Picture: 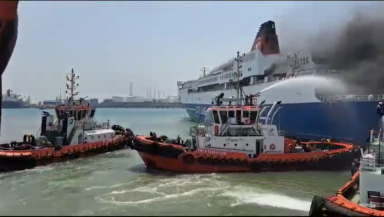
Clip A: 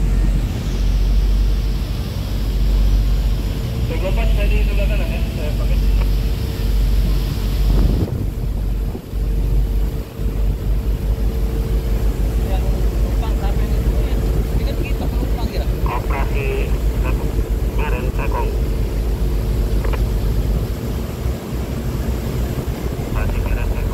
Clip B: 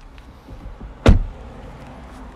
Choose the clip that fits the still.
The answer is A